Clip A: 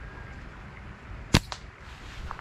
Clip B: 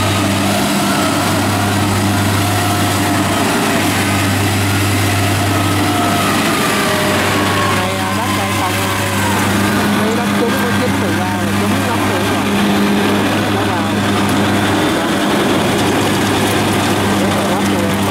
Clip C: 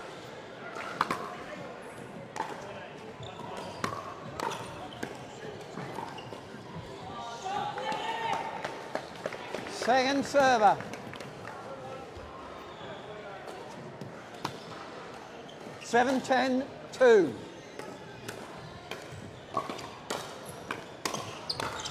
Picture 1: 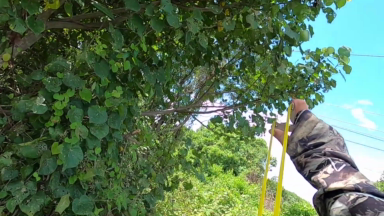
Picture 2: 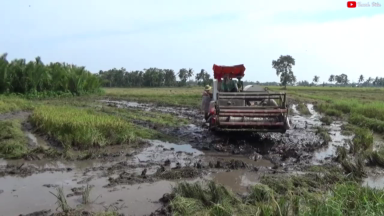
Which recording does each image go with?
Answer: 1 A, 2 B